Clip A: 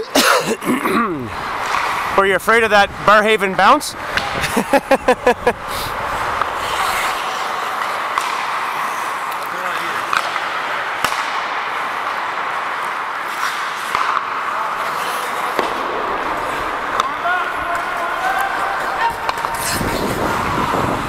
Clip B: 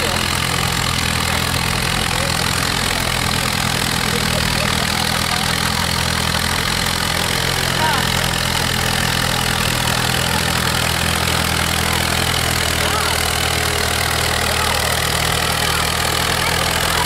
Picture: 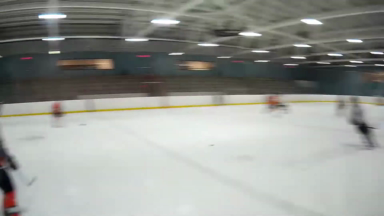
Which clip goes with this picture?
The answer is A